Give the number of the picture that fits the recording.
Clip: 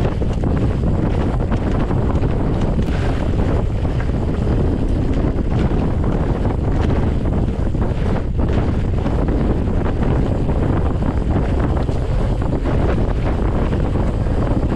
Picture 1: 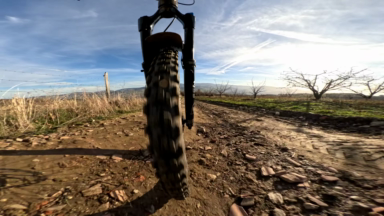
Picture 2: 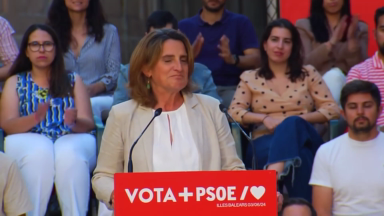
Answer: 1